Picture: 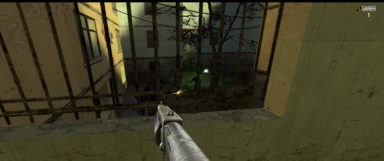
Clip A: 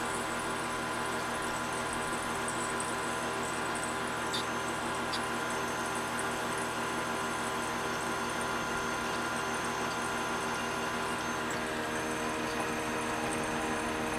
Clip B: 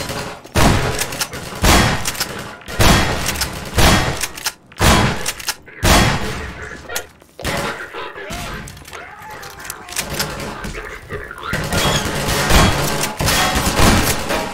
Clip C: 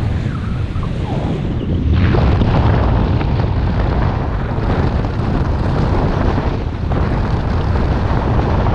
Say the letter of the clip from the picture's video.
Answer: B